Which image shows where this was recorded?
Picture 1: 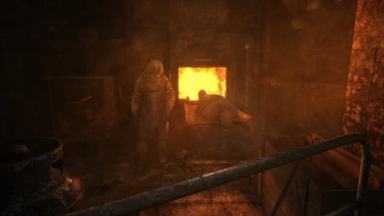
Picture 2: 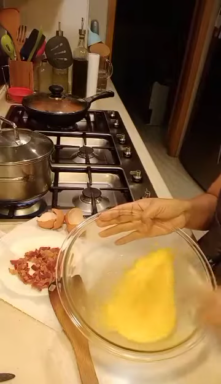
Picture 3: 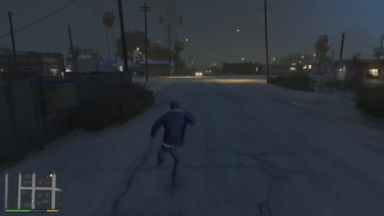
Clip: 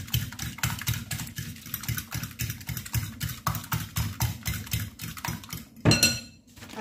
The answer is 2